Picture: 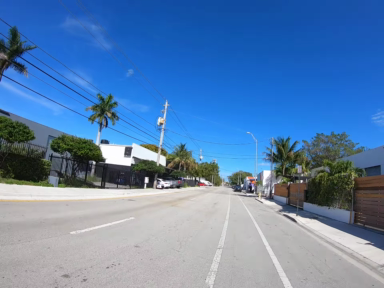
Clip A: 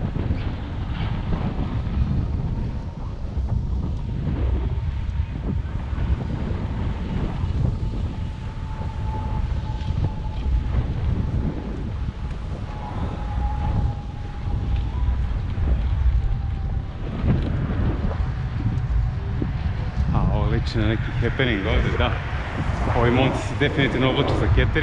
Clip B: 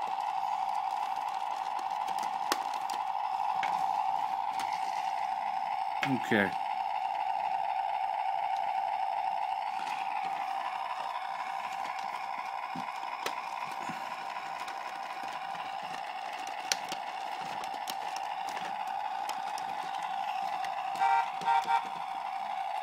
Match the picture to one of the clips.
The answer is A